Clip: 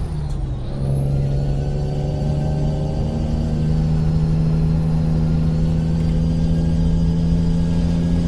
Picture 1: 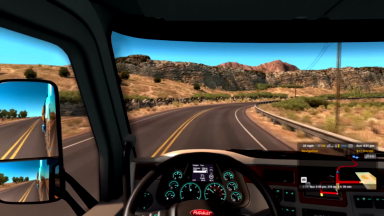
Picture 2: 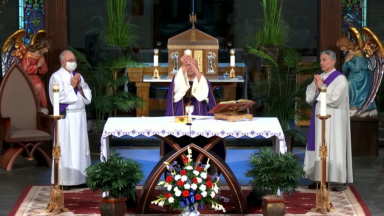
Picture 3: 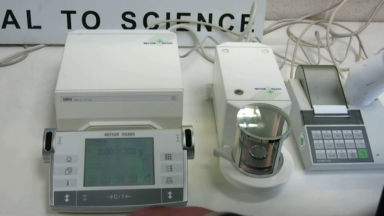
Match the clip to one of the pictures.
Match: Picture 1